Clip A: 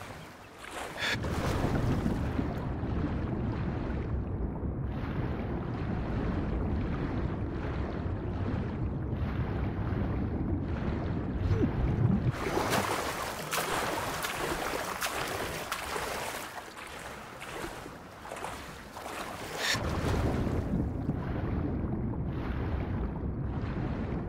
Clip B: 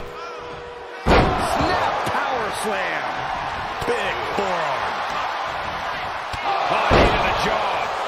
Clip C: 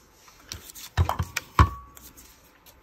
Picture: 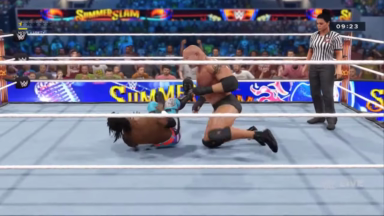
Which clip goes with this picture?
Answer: B